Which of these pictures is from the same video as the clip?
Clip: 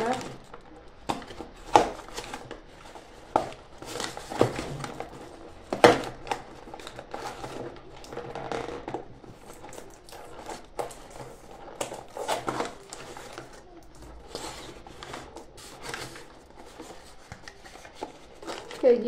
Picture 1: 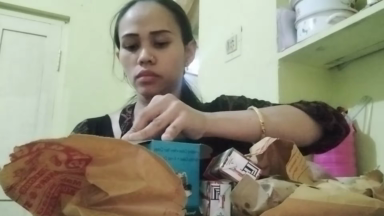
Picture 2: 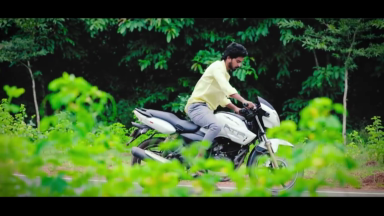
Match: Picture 1